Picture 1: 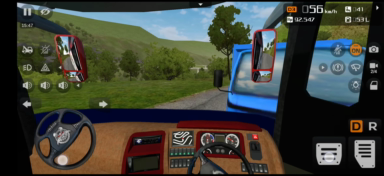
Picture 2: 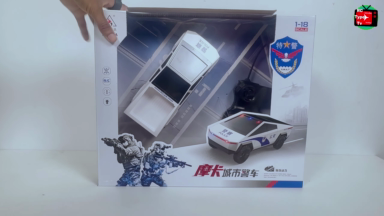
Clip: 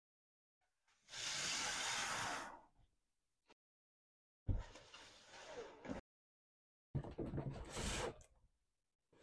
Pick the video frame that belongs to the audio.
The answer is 2